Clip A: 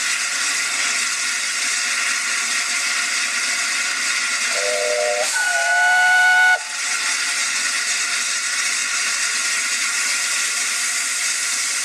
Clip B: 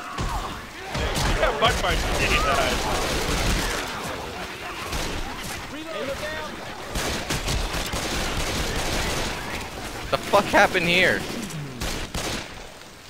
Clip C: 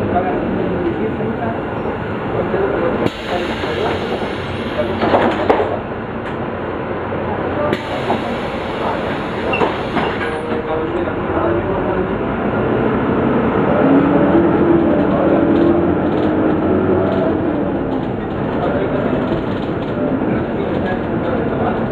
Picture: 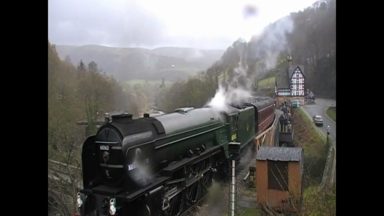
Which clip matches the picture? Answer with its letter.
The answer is A